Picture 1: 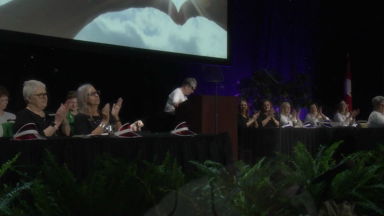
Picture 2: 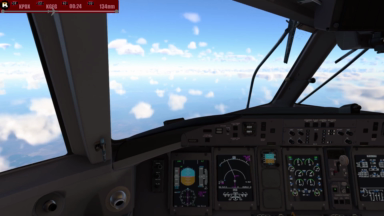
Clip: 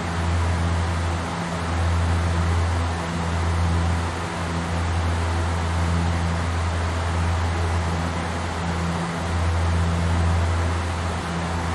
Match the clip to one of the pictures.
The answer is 2